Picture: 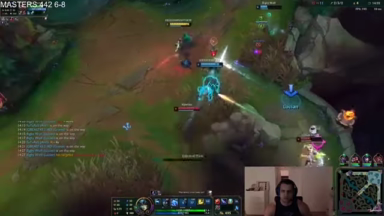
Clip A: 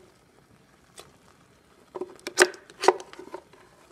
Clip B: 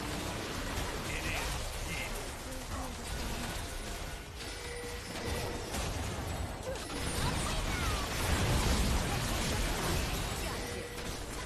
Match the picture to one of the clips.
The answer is B